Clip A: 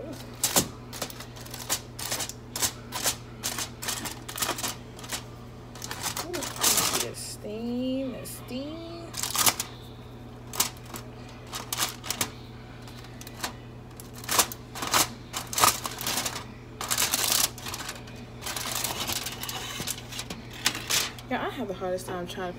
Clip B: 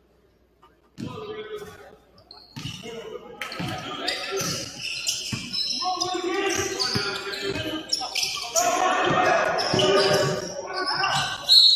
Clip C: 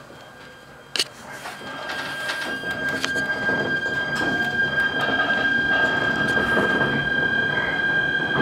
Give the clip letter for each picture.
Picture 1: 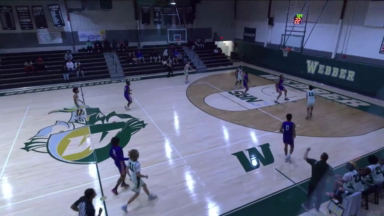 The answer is B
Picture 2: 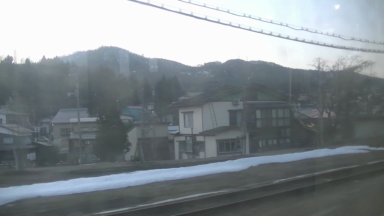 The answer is C